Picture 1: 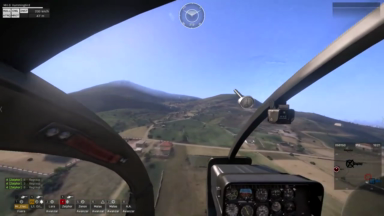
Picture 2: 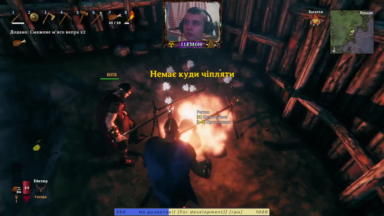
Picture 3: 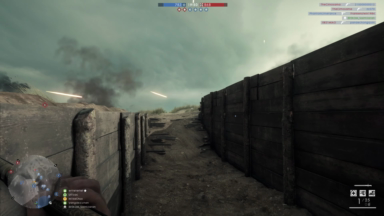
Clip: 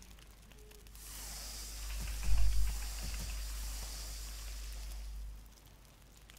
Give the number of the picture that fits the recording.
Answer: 2